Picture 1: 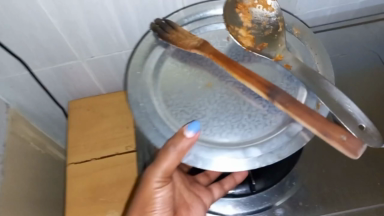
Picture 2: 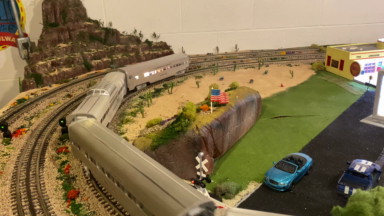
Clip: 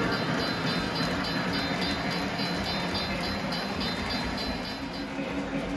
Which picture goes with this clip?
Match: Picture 2